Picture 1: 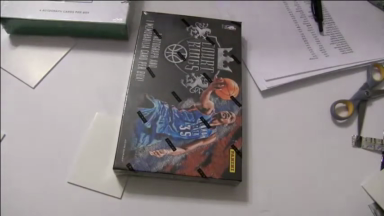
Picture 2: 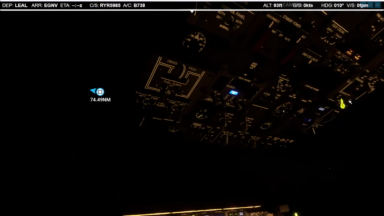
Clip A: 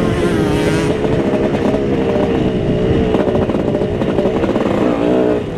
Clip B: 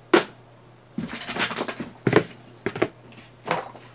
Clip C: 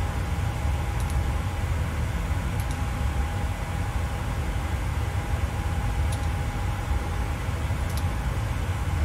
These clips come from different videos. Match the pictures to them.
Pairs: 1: B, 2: C